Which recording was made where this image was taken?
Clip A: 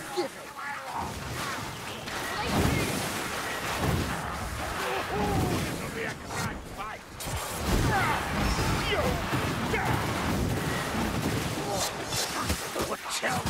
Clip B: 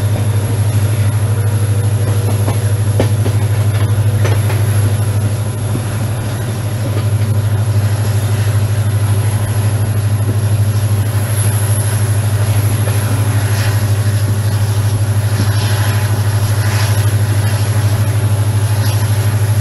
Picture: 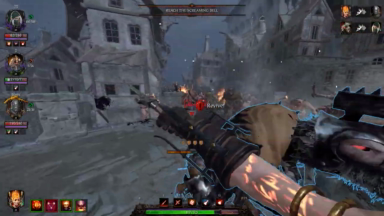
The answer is A